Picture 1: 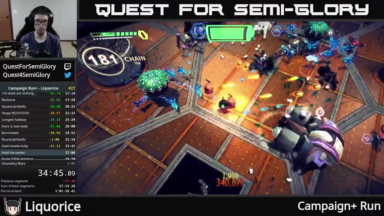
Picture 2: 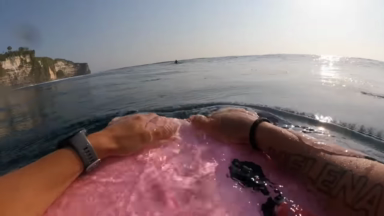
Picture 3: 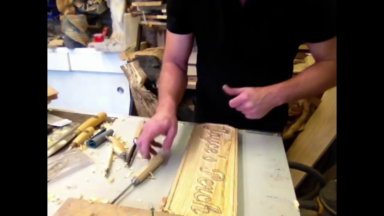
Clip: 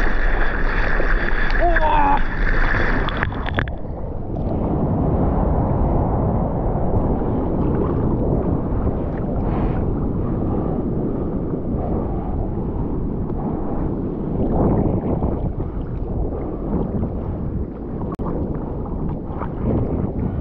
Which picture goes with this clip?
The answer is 2